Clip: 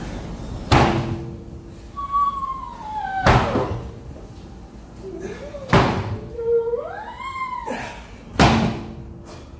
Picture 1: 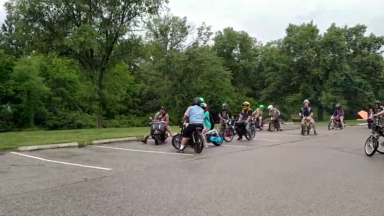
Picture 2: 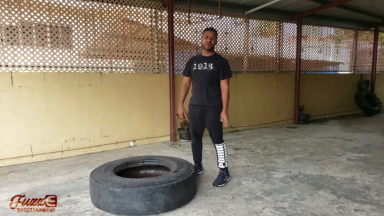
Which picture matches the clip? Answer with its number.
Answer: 2